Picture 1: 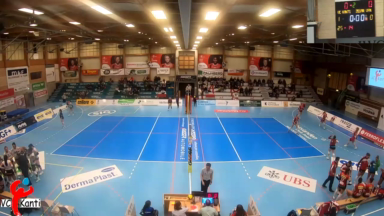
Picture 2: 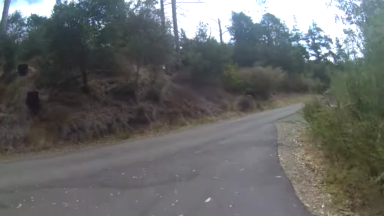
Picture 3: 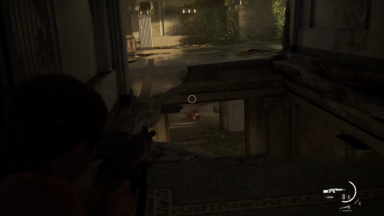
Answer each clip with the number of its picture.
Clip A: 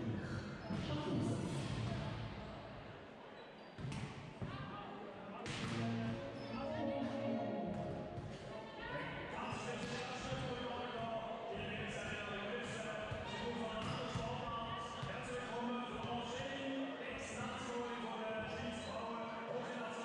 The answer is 1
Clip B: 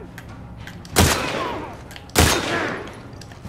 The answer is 3